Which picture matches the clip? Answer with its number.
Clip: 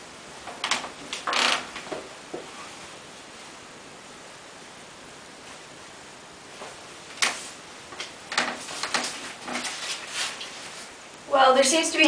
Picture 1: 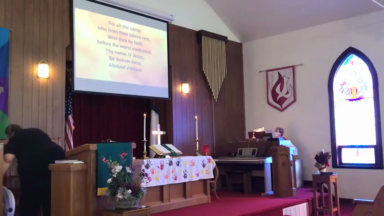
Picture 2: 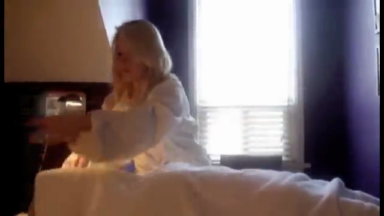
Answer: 2